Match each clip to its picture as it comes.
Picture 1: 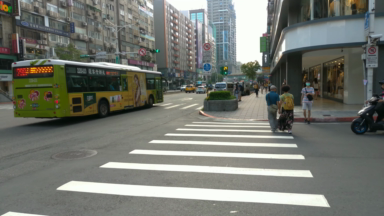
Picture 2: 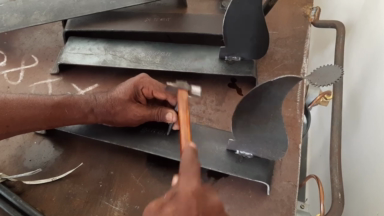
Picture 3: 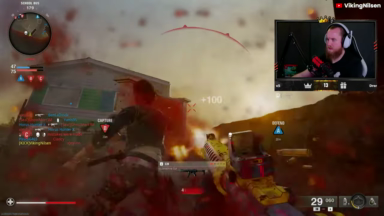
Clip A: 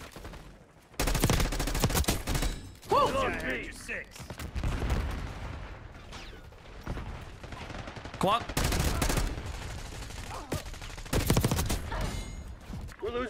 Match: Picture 3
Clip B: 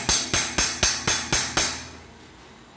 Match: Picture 2